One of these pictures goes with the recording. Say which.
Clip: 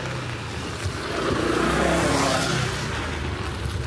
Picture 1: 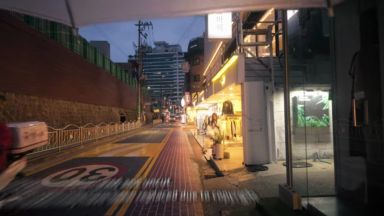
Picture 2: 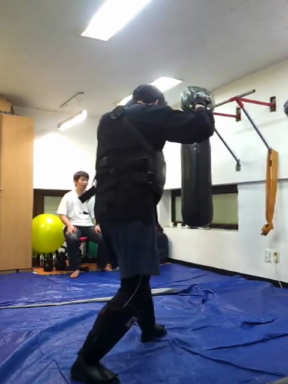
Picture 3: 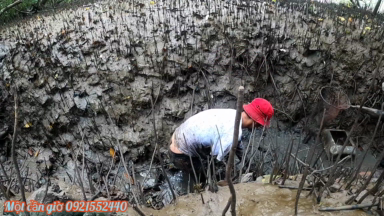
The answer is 1